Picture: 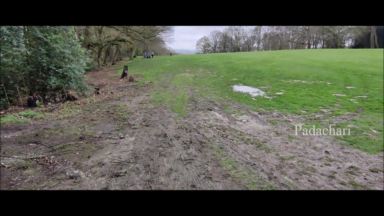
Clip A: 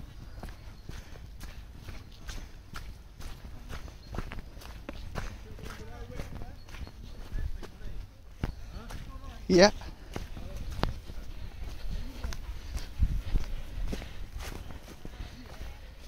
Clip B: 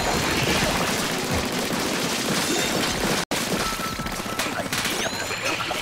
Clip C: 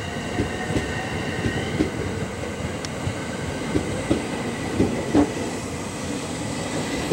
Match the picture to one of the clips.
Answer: A